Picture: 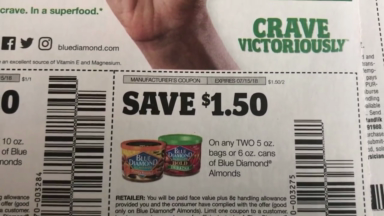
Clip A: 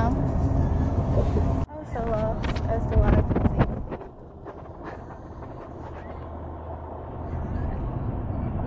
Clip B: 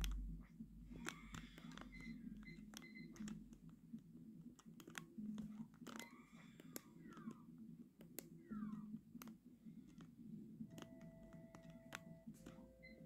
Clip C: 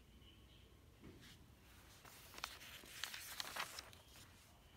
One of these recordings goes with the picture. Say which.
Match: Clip C